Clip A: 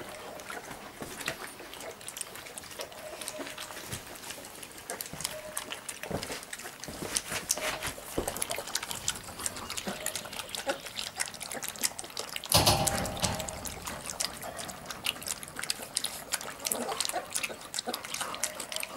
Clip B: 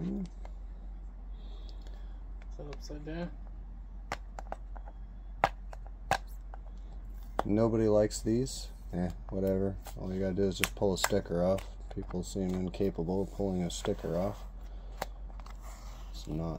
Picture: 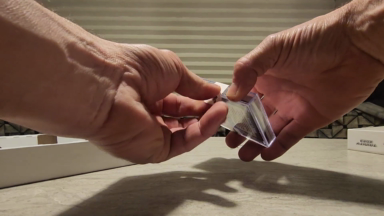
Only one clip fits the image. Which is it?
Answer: B